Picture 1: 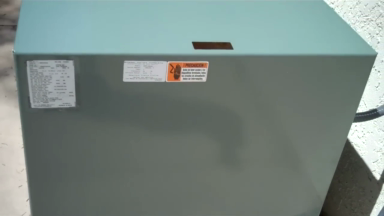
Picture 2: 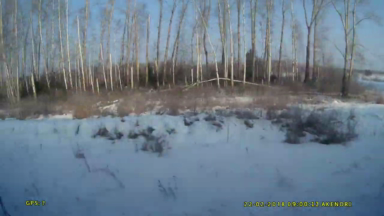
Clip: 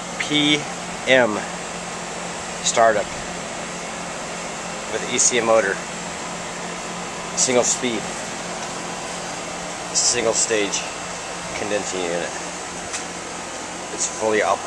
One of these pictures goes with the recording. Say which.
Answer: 1